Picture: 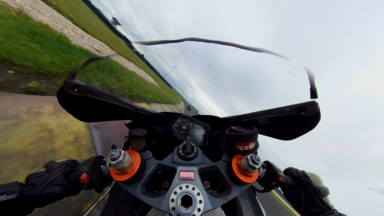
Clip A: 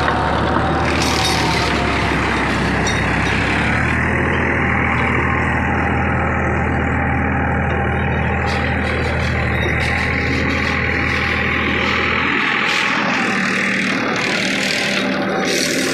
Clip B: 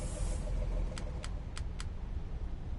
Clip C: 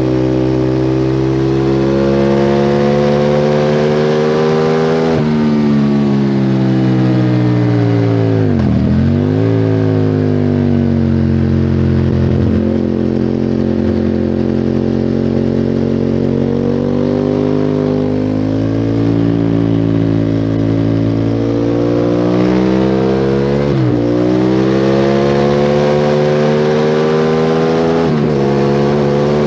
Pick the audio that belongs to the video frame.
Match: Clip C